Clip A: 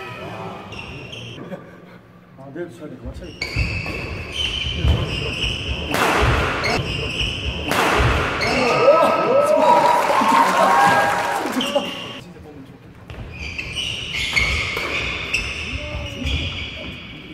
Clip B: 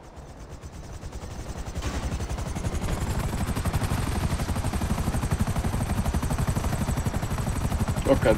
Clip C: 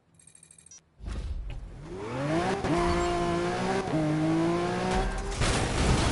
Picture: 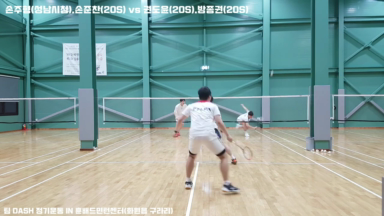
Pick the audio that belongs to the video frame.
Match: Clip A